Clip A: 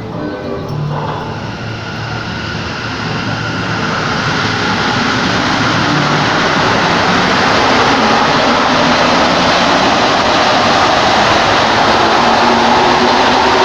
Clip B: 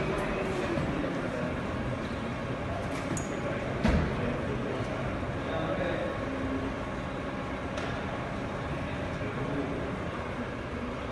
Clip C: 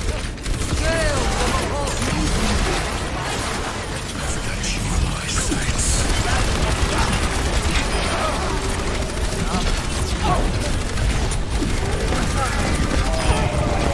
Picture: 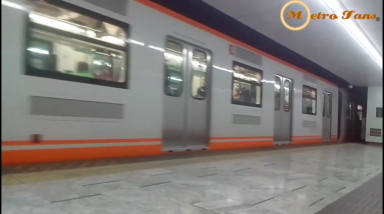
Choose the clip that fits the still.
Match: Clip A